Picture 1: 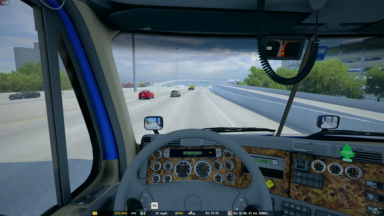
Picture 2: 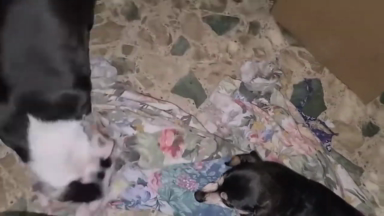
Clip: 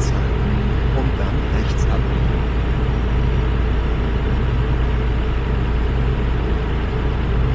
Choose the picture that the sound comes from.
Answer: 1